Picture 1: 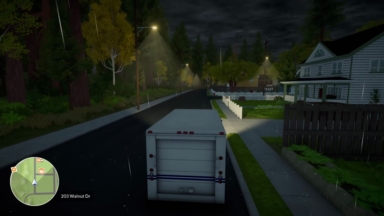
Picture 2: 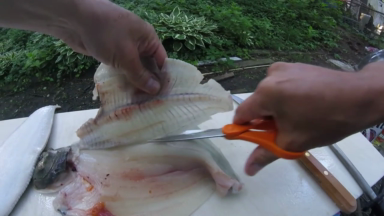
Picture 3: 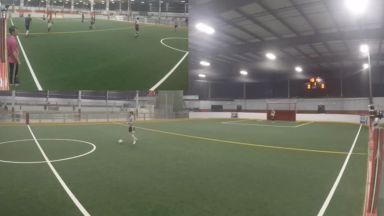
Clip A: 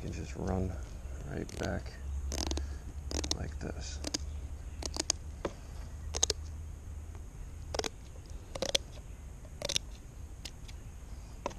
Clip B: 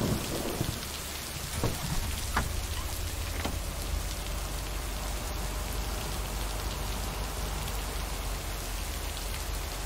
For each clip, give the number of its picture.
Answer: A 2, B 1